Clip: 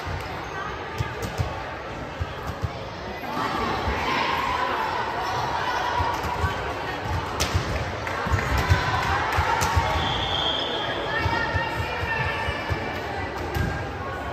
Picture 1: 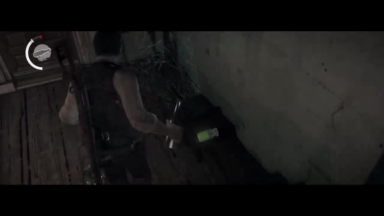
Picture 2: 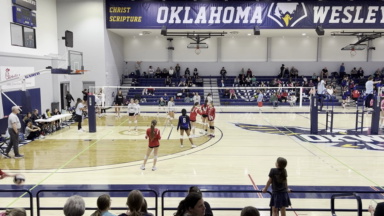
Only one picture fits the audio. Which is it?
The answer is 2